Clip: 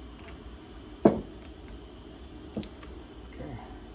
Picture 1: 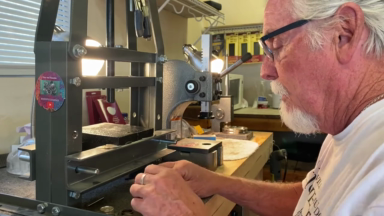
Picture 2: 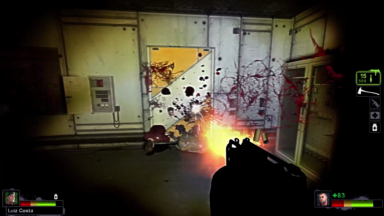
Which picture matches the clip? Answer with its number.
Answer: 1